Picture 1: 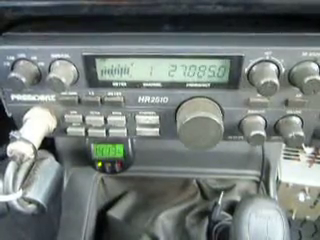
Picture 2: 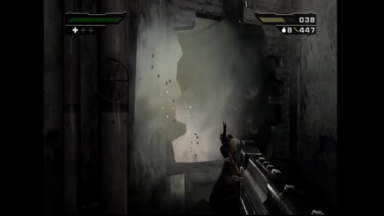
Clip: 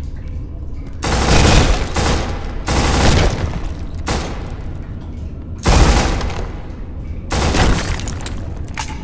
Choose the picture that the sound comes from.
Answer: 2